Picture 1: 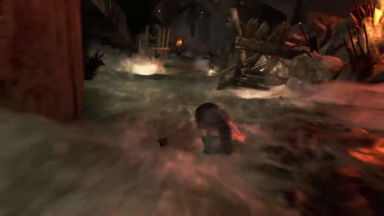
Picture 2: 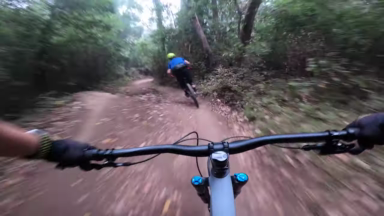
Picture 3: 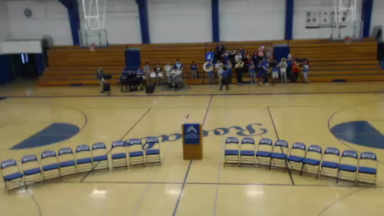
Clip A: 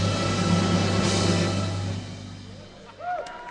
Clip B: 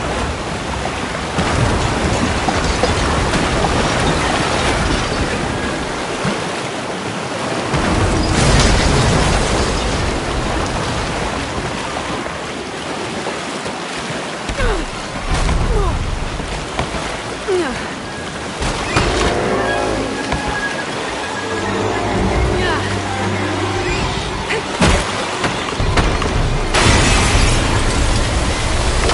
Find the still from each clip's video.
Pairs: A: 3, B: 1